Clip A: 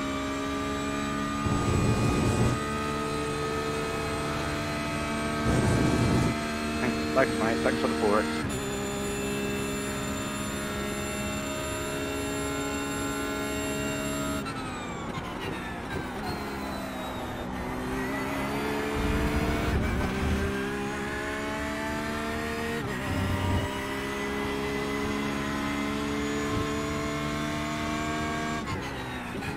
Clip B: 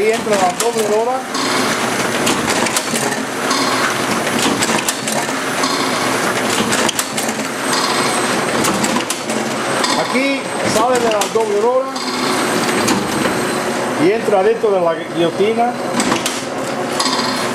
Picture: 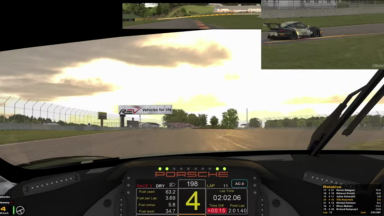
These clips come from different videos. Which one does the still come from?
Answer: A